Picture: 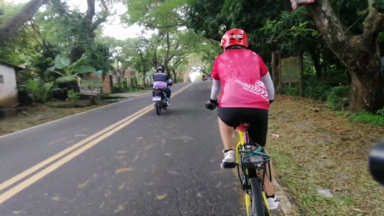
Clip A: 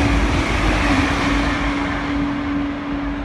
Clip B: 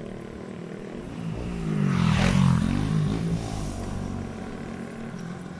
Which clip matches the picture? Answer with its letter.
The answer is B